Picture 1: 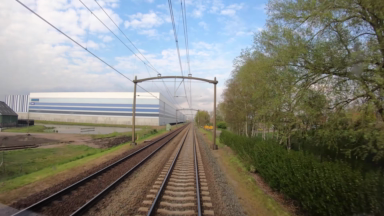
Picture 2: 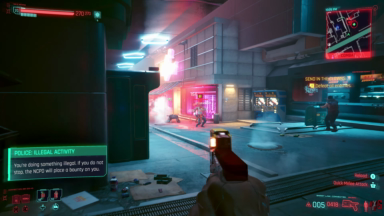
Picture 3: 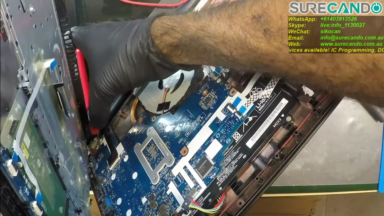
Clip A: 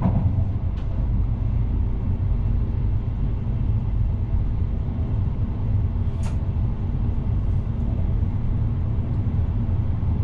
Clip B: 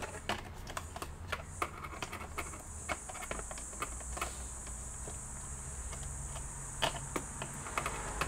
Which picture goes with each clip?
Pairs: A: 1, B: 3